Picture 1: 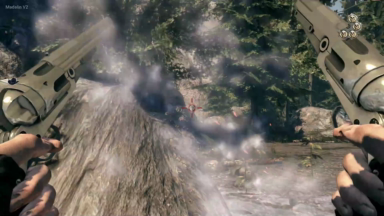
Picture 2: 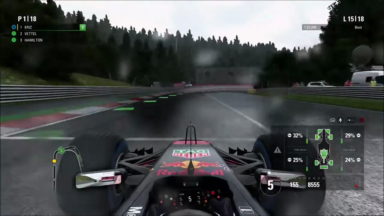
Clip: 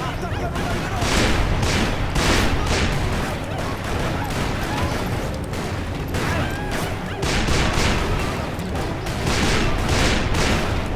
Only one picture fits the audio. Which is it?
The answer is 1